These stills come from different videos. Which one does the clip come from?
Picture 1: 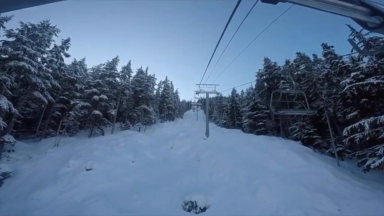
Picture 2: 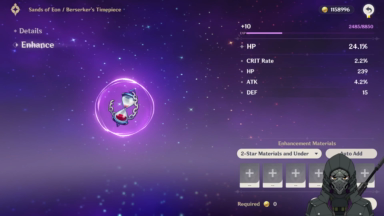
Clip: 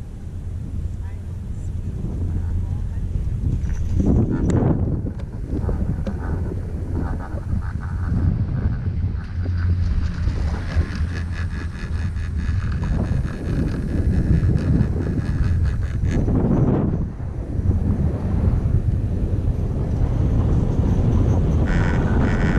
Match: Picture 1